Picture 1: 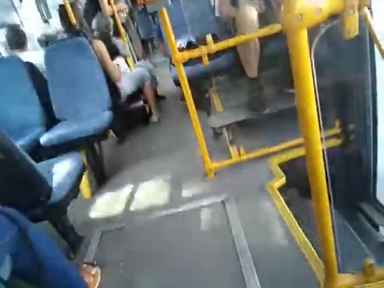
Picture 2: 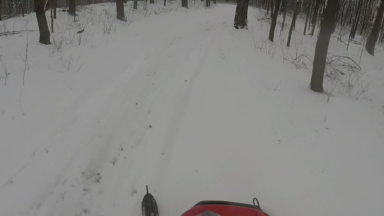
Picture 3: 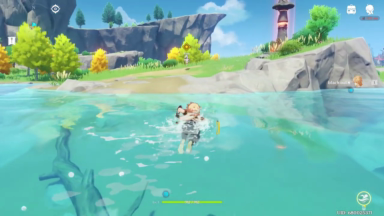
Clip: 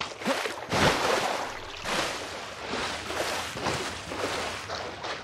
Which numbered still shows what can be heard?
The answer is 3